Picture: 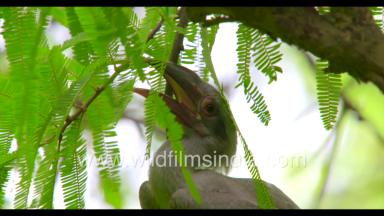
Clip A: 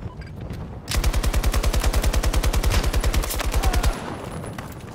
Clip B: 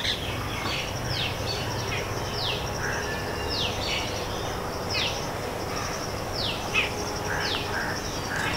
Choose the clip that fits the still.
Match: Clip B